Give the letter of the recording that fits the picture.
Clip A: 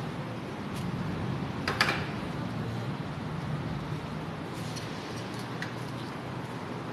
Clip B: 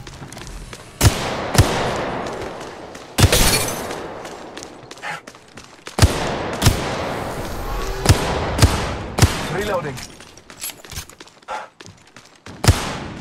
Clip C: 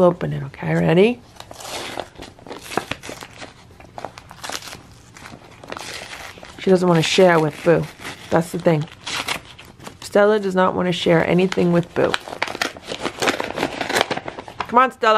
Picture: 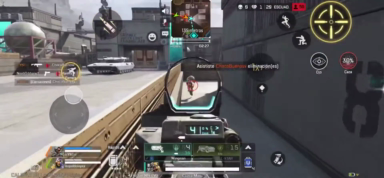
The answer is B